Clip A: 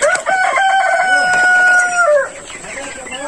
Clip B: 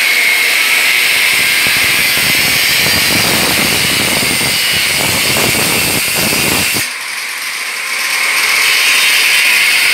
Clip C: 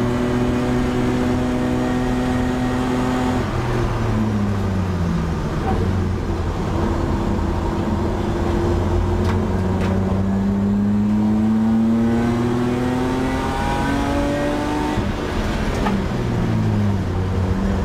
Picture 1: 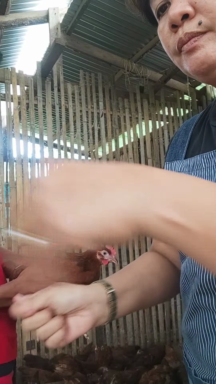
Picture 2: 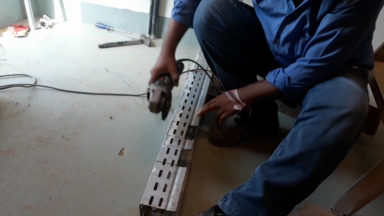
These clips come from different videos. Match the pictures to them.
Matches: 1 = A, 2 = B